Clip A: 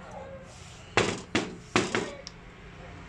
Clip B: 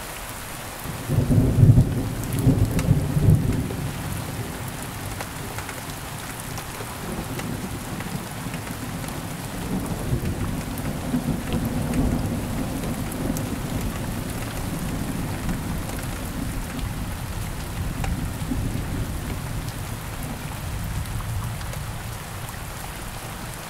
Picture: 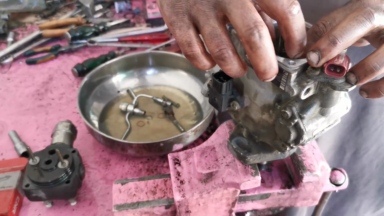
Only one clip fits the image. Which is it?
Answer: A